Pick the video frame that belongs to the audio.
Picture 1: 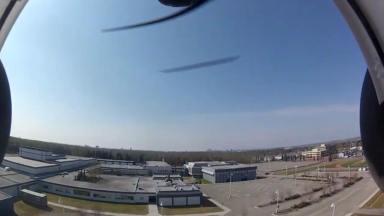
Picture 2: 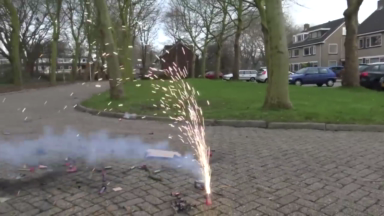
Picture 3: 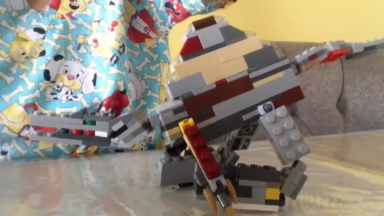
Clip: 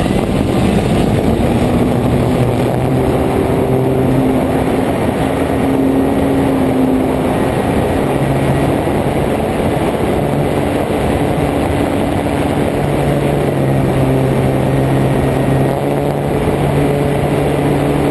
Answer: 1